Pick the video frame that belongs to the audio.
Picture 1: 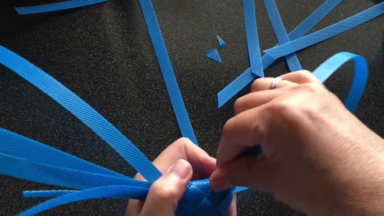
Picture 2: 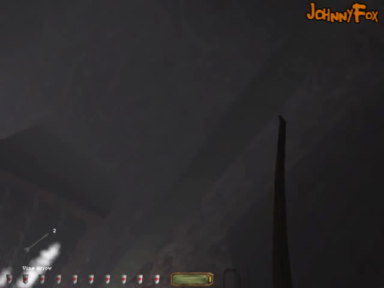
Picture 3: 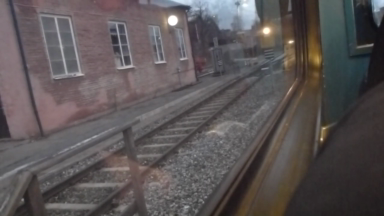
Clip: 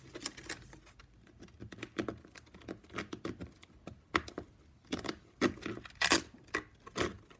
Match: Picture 1